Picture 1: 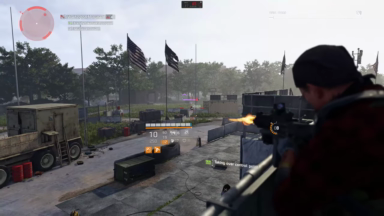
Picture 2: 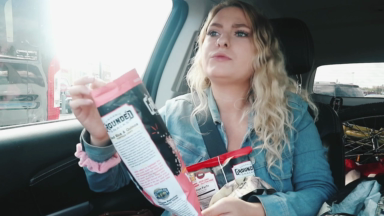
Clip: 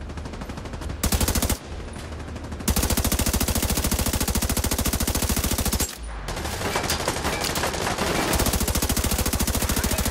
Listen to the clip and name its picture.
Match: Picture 1